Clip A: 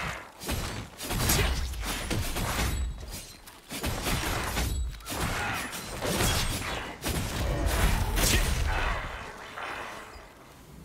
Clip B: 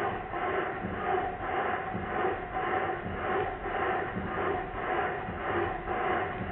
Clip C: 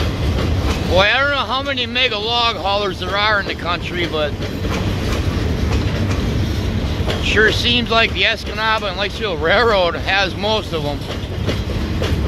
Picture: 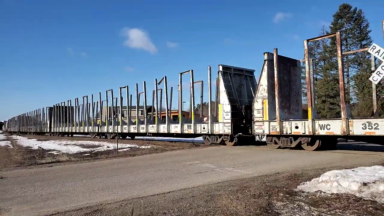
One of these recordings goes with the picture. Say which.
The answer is C